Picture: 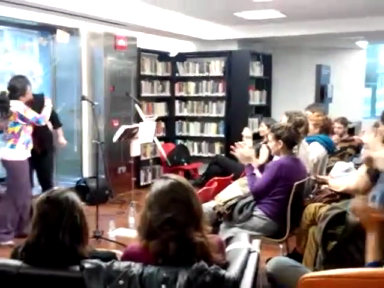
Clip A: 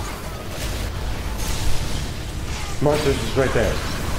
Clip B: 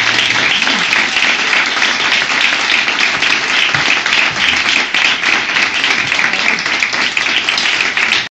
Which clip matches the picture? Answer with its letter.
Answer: B